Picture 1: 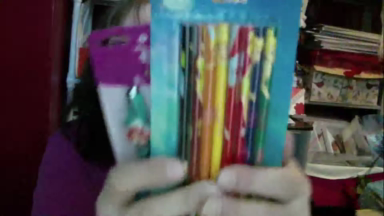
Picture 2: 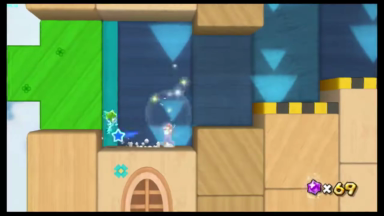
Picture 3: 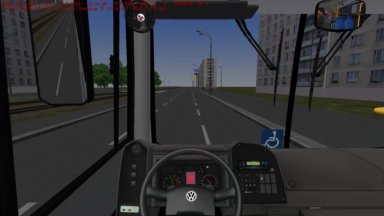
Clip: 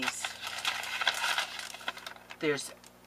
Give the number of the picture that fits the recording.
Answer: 1